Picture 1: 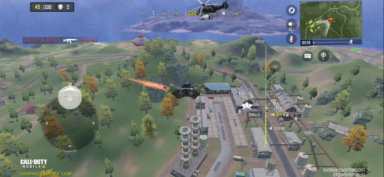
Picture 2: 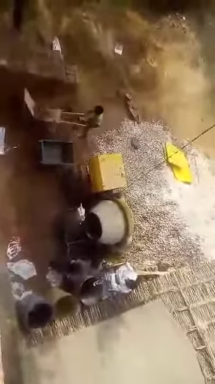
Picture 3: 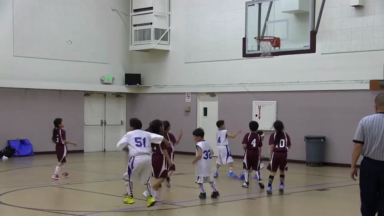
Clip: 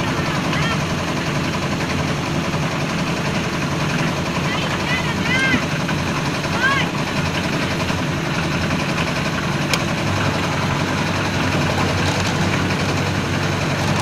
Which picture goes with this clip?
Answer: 2